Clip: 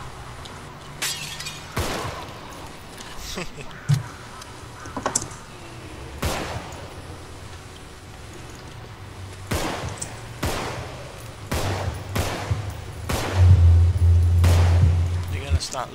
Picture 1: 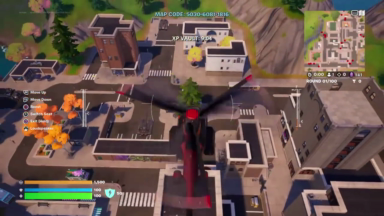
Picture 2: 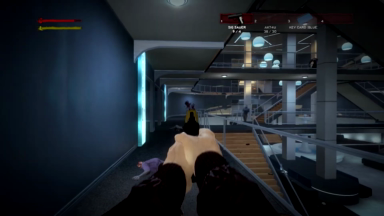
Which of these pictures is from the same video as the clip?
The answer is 2